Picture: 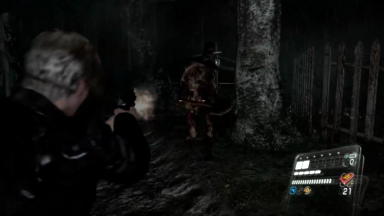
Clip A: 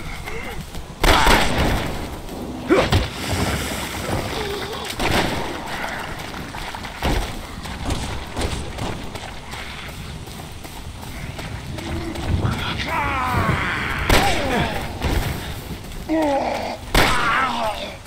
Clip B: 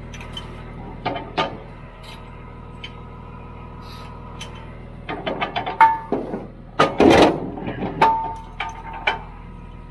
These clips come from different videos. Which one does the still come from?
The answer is A